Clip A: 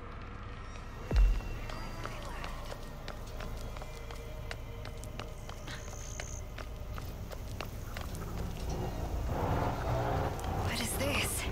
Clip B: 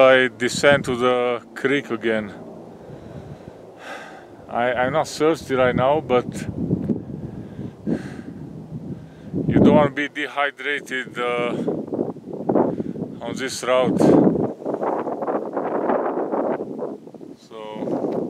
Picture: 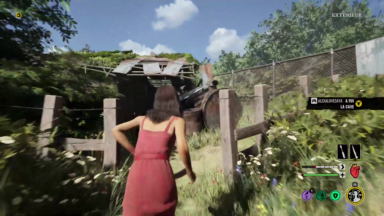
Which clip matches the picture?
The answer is A